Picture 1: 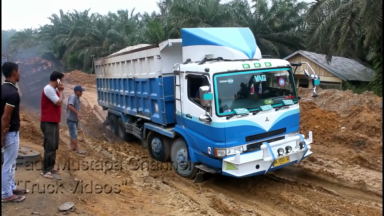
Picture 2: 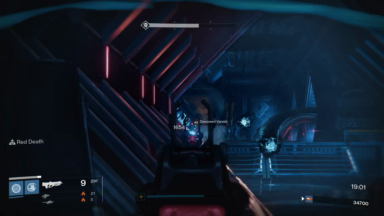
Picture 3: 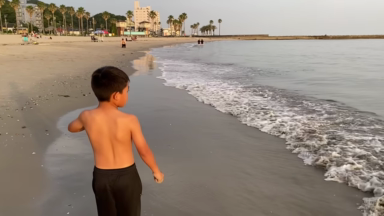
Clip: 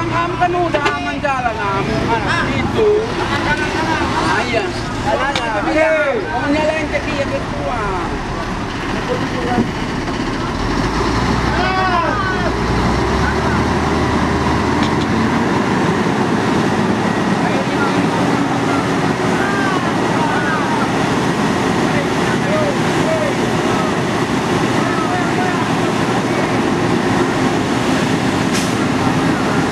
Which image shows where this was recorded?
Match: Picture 1